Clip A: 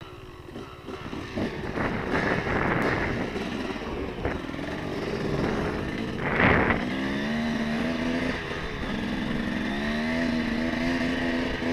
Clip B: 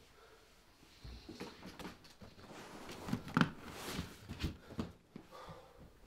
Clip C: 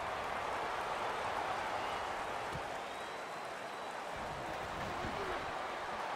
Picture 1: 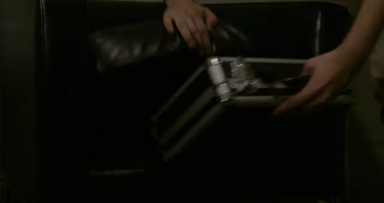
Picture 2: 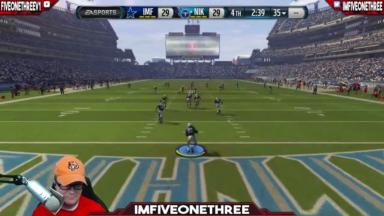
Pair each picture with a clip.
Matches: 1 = B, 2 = C